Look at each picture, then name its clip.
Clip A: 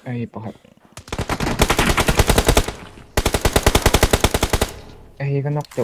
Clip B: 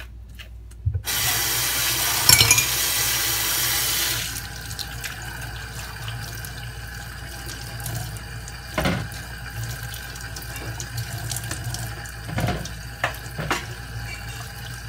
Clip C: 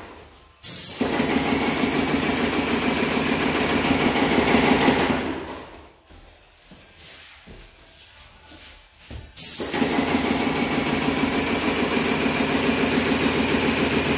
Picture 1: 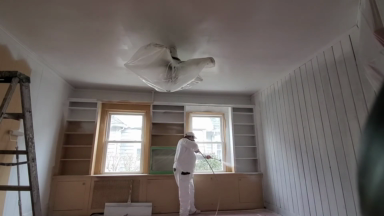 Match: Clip C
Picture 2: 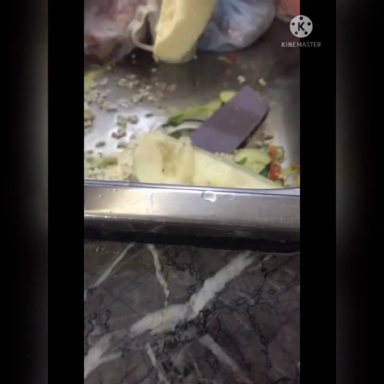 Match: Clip B